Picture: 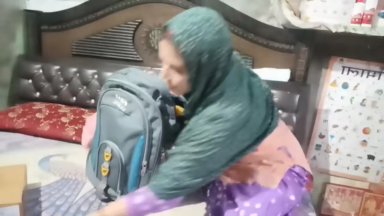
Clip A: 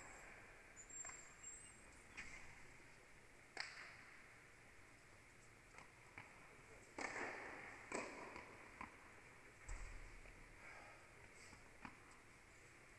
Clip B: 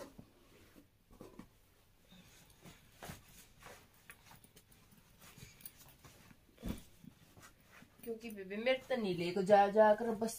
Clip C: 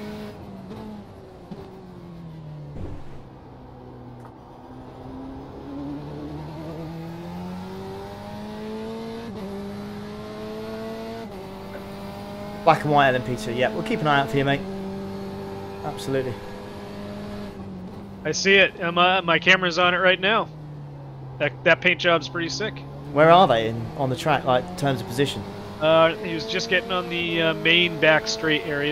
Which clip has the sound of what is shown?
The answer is B